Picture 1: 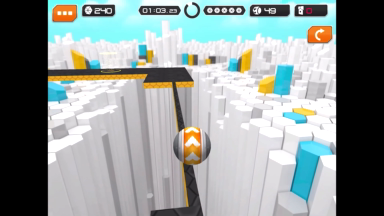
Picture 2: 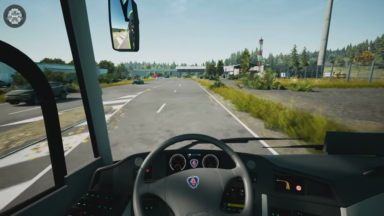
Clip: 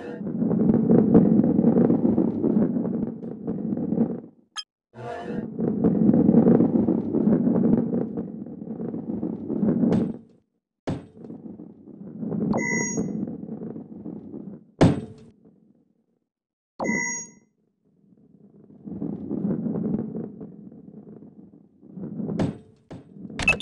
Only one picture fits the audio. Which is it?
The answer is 1